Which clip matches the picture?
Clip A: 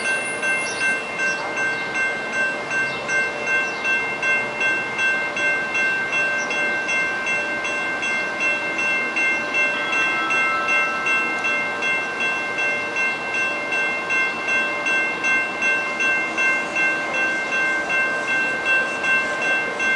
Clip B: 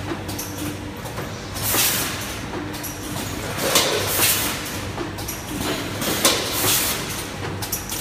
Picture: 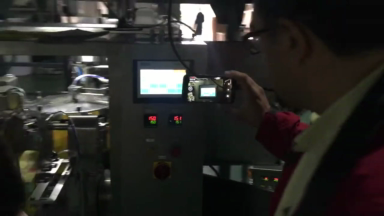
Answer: B